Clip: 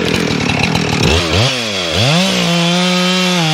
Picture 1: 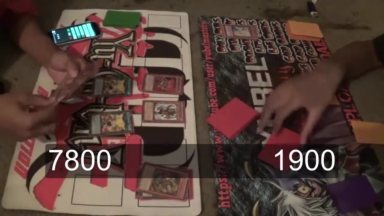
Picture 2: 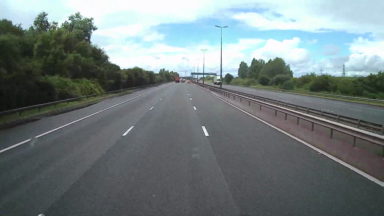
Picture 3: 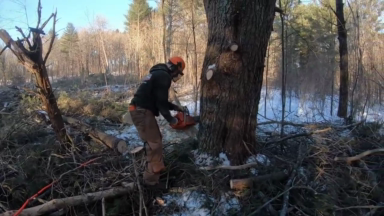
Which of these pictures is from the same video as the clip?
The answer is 3